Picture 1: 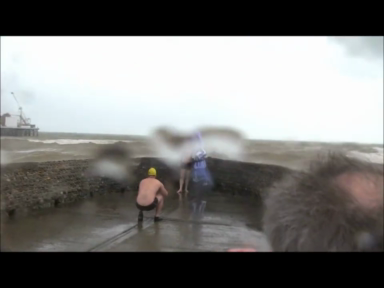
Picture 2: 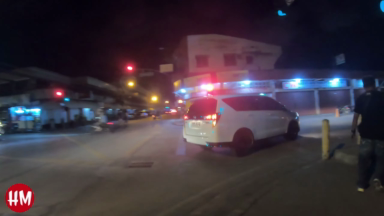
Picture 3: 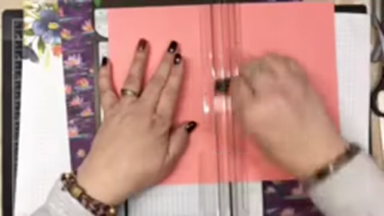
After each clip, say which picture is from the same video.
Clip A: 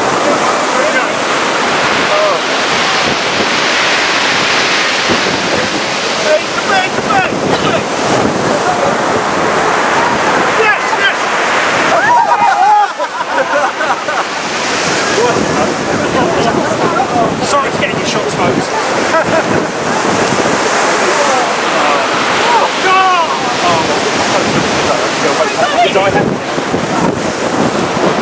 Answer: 1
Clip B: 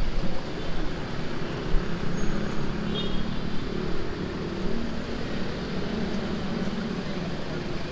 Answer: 2